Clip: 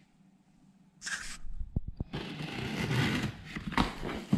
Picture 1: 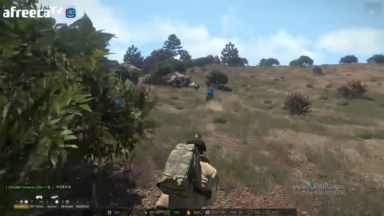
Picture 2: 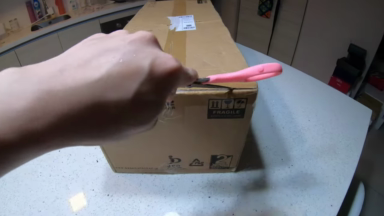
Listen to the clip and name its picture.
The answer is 2